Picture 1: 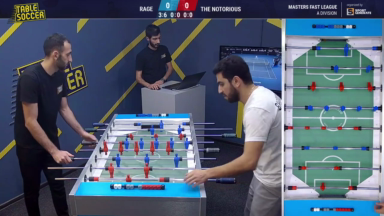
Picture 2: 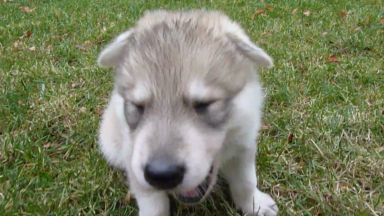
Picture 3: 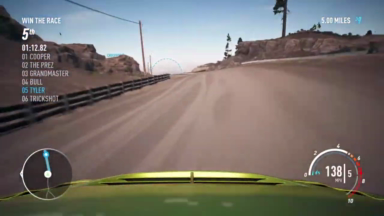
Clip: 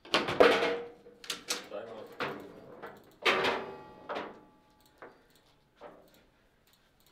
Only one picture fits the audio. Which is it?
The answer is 1